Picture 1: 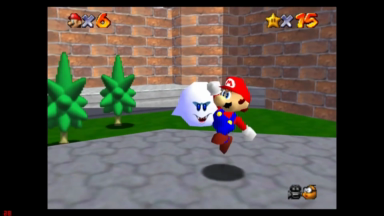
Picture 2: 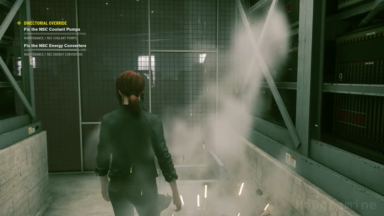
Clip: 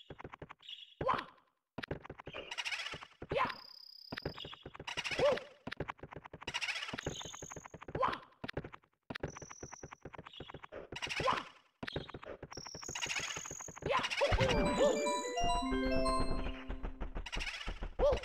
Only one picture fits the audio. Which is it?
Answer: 1